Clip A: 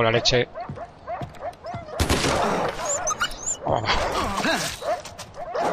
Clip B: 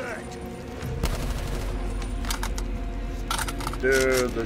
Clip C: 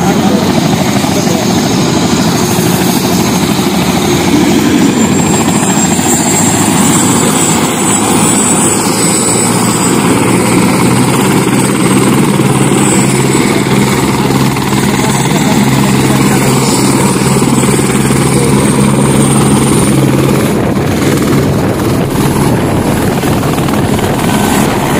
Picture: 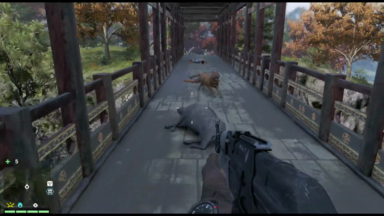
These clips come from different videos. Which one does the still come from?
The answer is A